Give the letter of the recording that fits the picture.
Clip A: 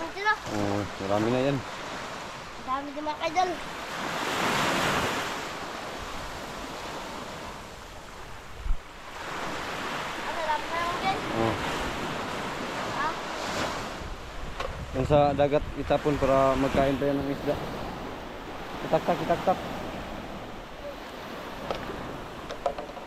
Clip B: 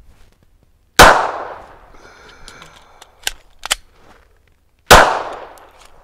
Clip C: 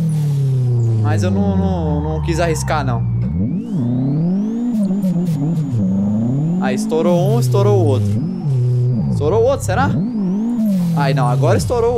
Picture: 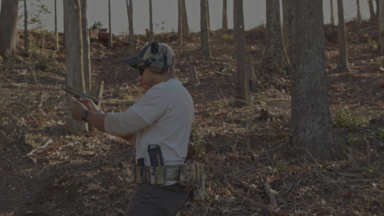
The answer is B